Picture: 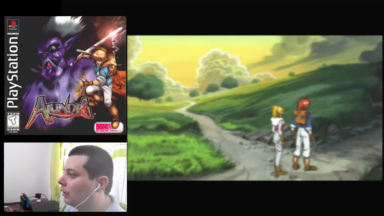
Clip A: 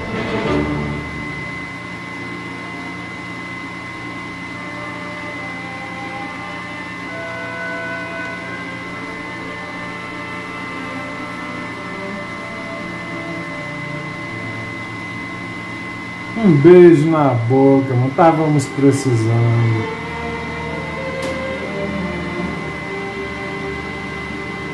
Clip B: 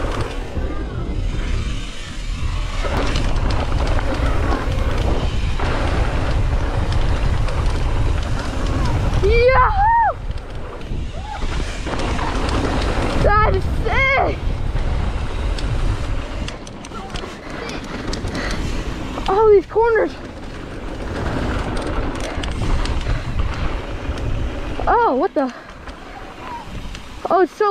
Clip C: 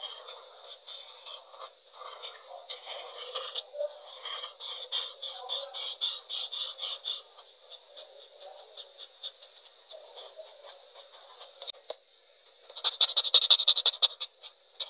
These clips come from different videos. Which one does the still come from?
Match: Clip A